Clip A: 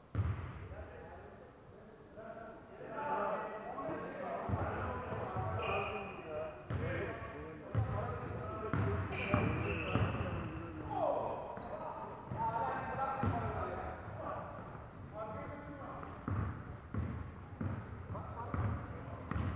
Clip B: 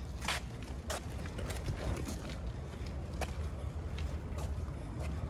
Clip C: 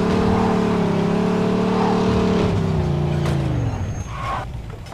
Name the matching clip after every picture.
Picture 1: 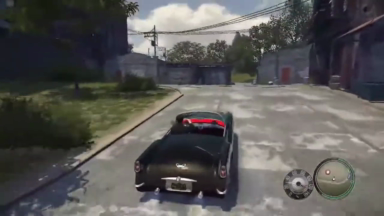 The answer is C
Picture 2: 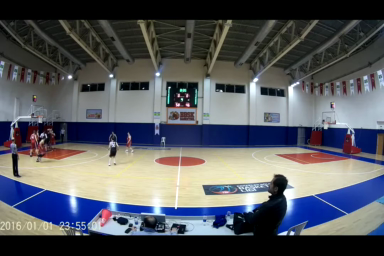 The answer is A